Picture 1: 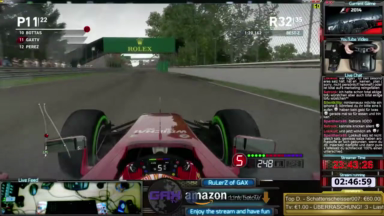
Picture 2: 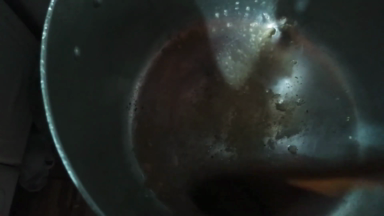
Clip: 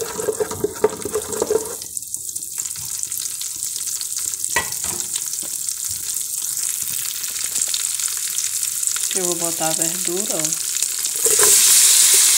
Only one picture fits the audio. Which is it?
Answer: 2